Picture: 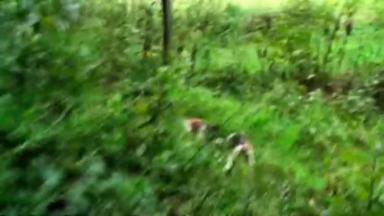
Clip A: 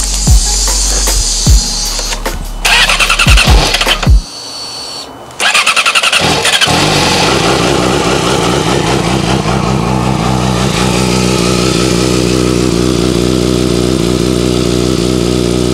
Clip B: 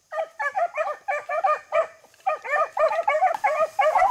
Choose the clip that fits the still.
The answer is B